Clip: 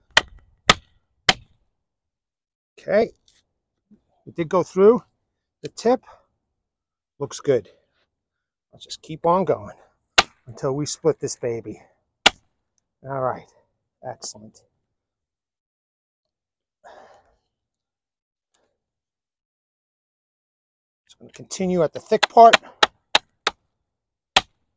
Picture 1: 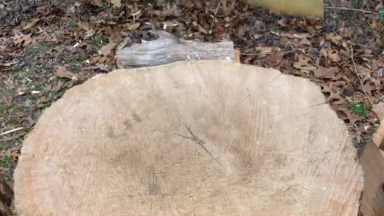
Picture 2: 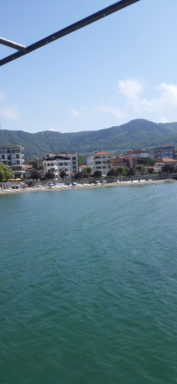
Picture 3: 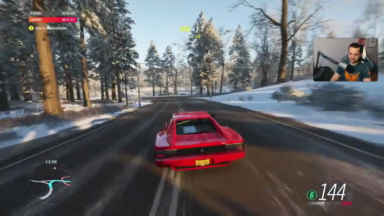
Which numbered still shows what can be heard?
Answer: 1